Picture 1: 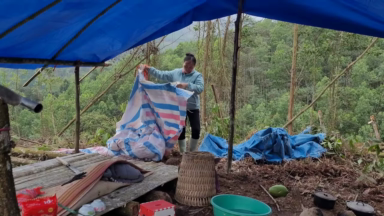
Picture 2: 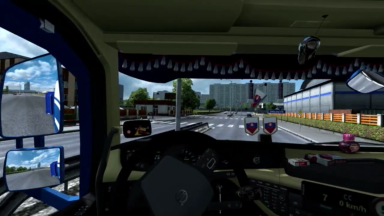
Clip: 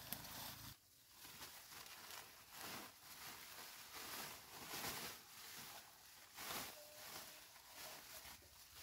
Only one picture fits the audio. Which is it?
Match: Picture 1